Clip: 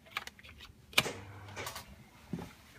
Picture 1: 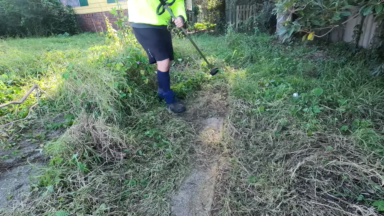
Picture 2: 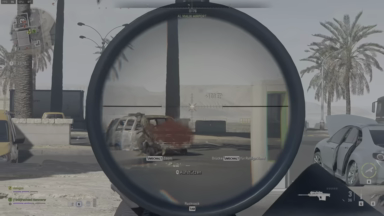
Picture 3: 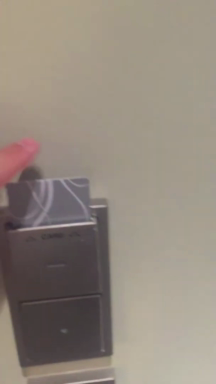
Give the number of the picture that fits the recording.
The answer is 3